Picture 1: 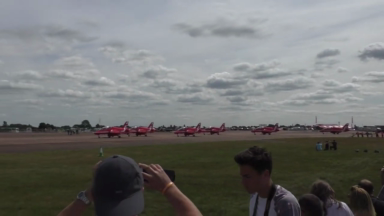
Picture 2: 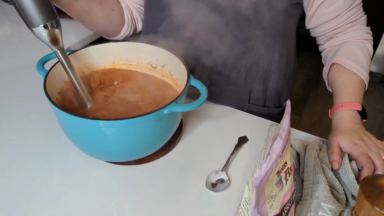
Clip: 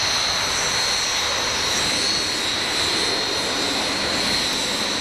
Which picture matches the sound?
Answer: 1